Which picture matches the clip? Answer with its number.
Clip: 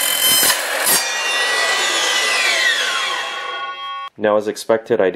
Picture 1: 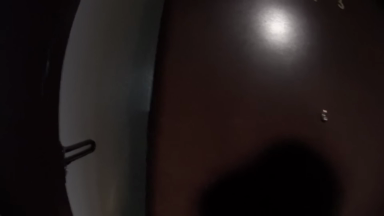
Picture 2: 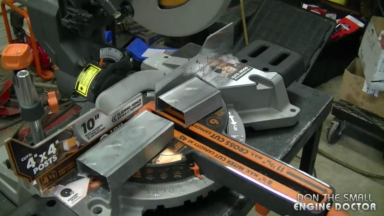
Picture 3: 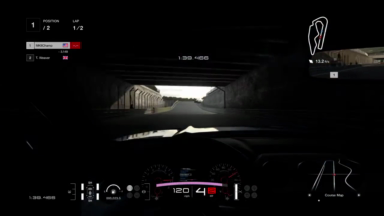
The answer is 2